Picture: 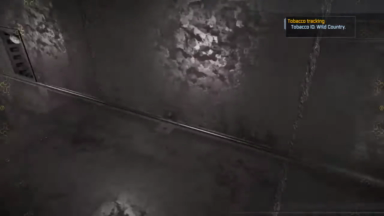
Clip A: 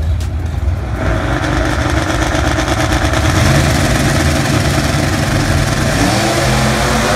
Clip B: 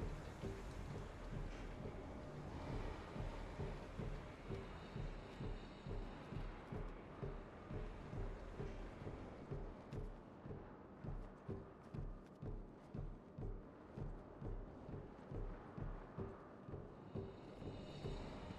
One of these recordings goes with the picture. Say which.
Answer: B